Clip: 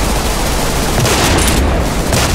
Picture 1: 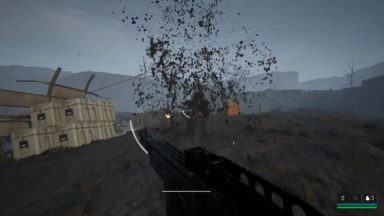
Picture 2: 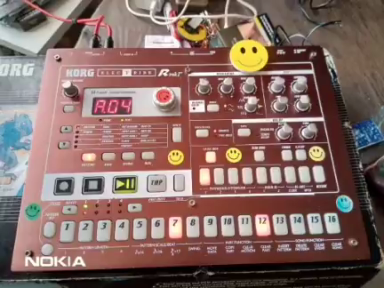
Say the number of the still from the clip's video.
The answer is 1